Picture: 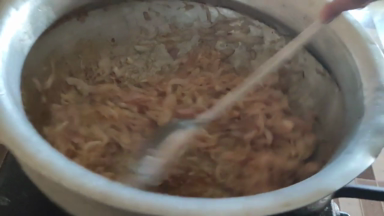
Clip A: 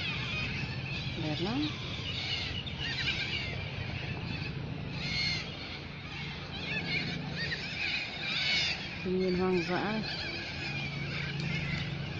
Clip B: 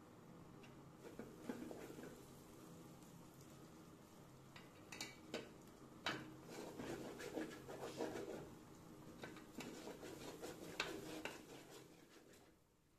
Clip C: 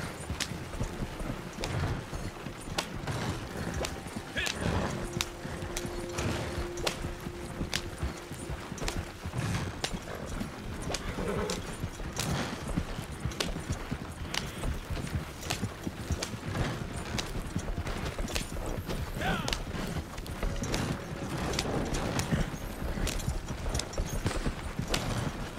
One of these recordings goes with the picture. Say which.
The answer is B